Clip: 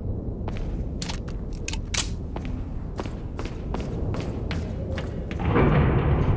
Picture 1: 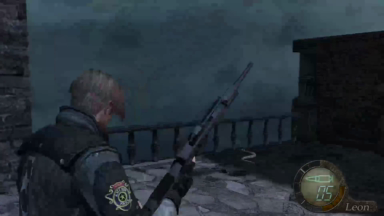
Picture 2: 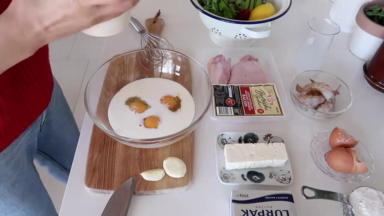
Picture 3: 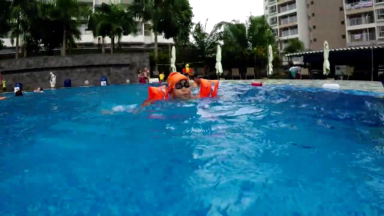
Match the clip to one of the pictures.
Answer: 1